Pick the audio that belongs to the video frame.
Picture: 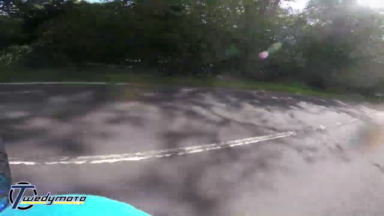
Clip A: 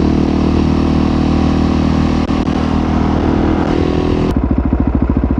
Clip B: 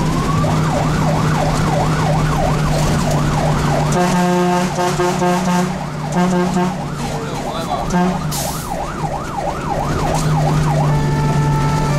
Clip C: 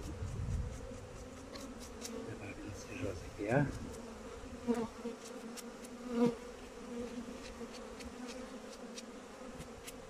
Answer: A